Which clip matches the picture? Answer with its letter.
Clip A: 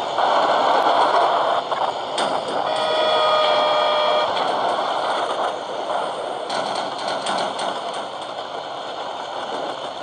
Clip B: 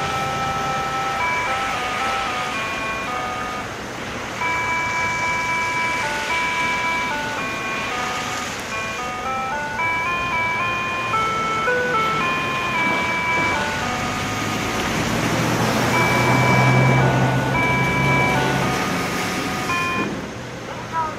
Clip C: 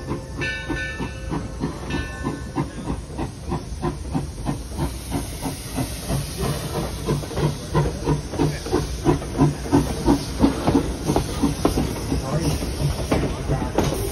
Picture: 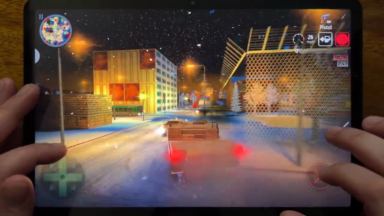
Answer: A